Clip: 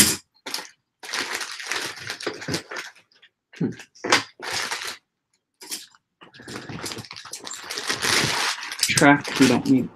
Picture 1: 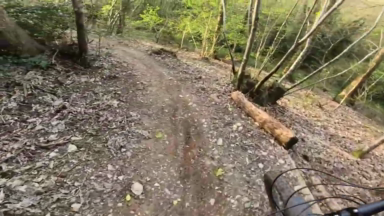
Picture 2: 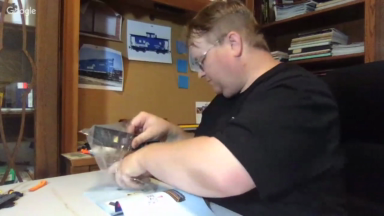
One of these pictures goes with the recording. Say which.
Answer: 2